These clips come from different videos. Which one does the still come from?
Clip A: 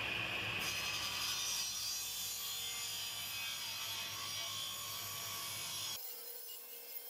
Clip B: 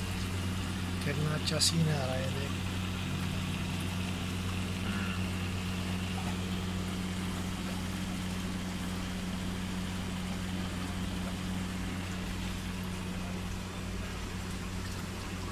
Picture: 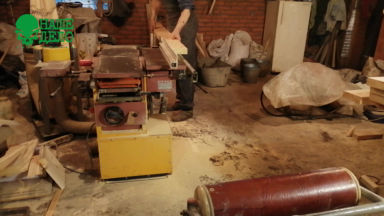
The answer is A